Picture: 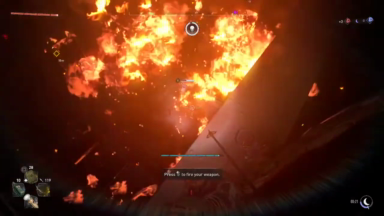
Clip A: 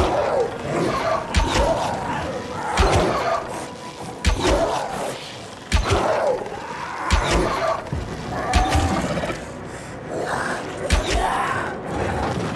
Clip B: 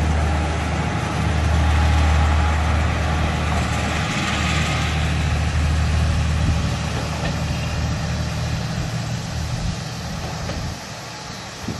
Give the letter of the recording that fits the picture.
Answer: A